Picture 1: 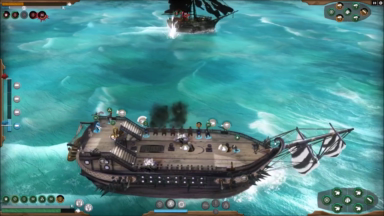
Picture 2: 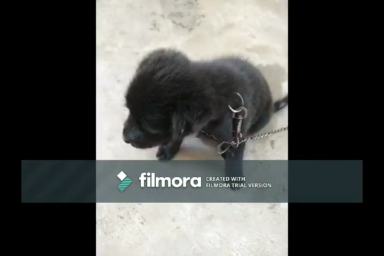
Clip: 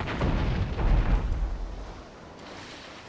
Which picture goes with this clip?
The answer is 1